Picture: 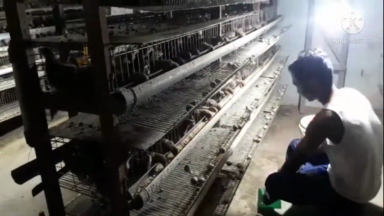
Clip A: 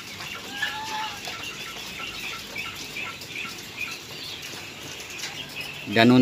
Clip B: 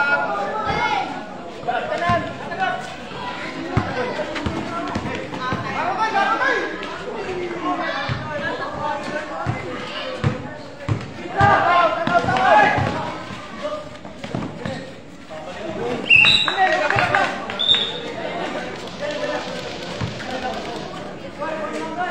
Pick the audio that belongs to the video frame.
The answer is A